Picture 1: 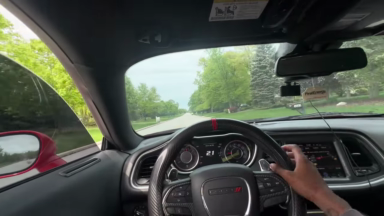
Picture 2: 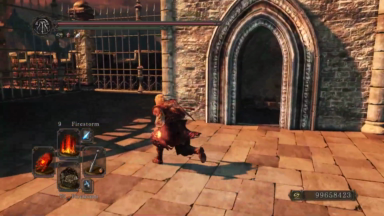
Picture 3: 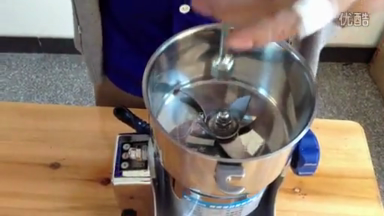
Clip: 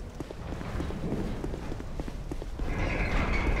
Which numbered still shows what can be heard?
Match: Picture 2